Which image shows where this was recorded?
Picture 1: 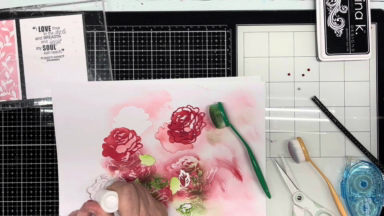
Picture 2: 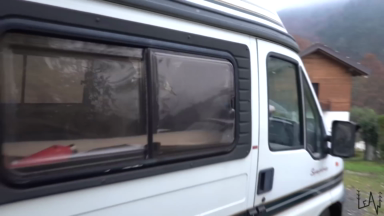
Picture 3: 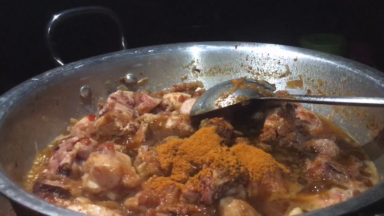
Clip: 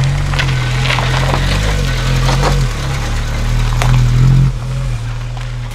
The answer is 2